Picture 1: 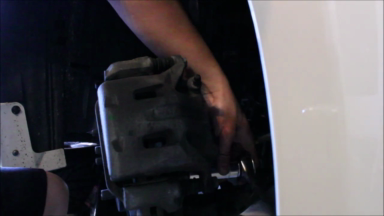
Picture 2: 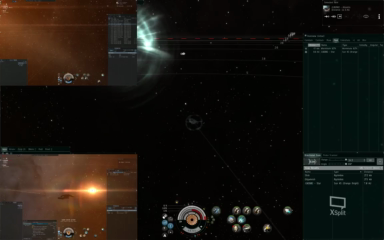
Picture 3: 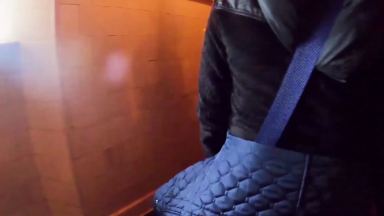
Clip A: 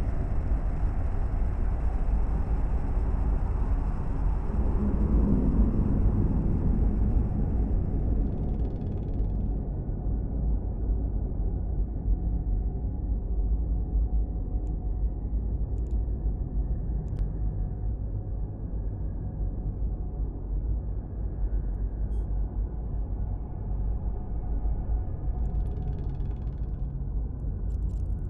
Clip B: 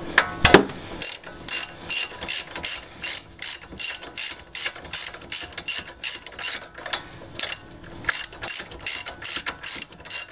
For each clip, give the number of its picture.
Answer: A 2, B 1